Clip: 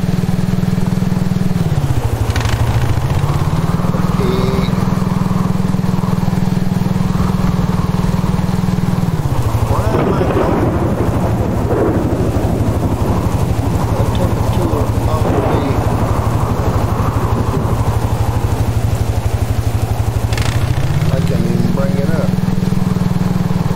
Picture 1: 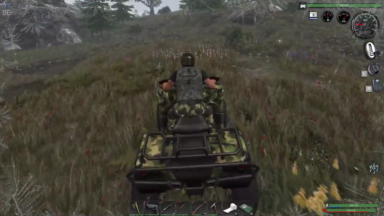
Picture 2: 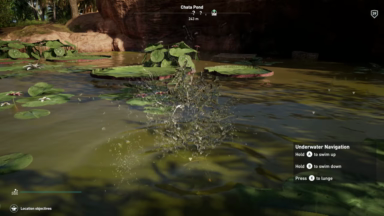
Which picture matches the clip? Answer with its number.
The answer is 1